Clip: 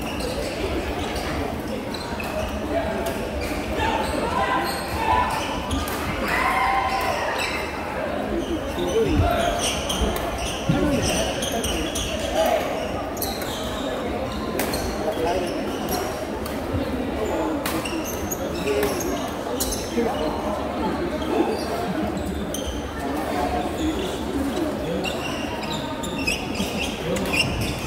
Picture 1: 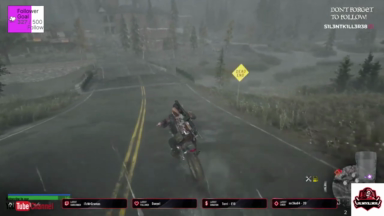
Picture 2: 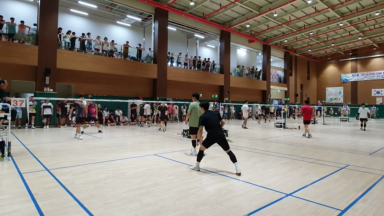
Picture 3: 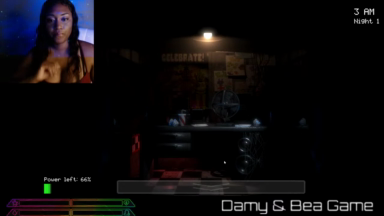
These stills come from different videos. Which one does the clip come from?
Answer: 2